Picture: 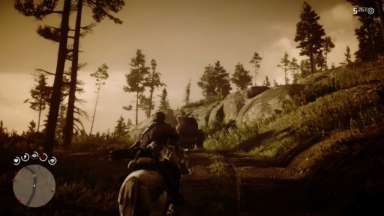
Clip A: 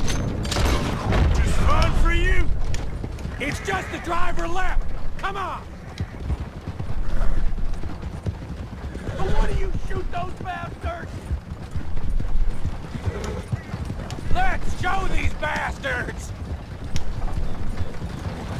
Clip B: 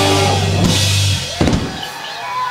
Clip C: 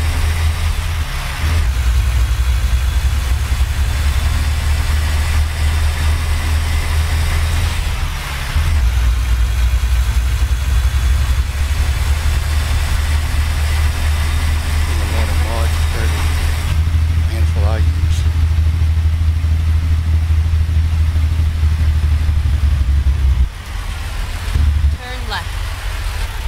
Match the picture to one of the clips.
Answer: A